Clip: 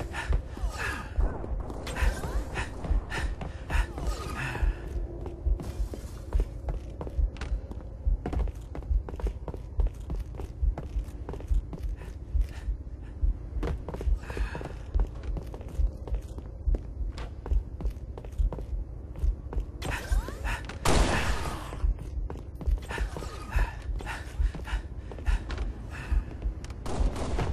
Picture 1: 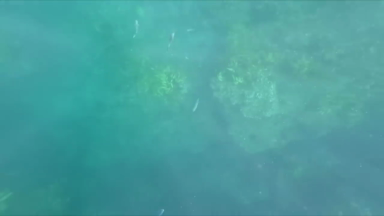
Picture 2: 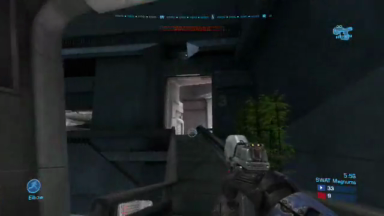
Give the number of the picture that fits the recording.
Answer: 2